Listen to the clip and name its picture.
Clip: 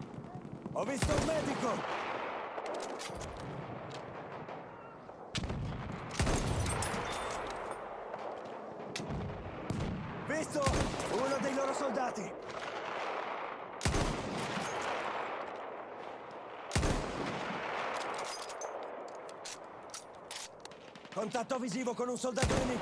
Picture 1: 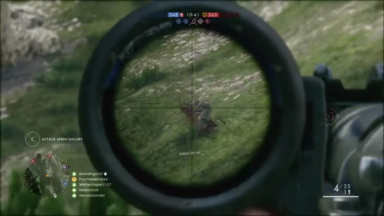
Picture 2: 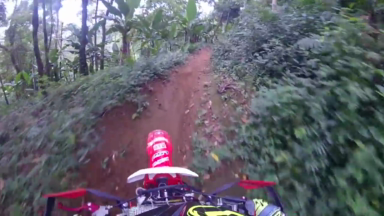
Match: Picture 1